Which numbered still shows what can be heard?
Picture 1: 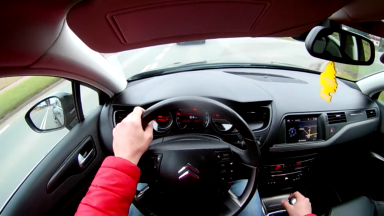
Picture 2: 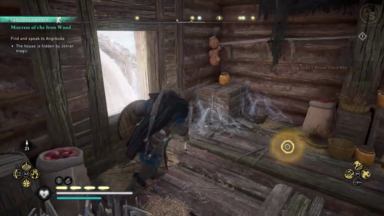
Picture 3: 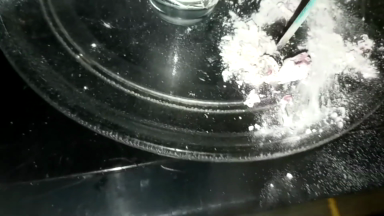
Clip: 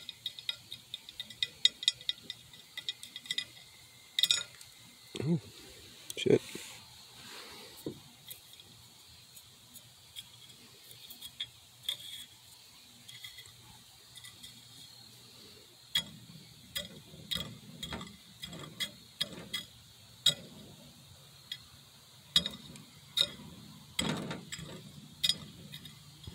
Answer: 3